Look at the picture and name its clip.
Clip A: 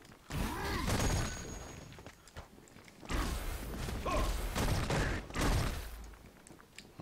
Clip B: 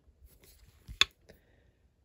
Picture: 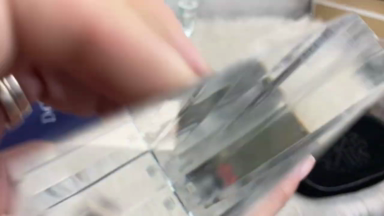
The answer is B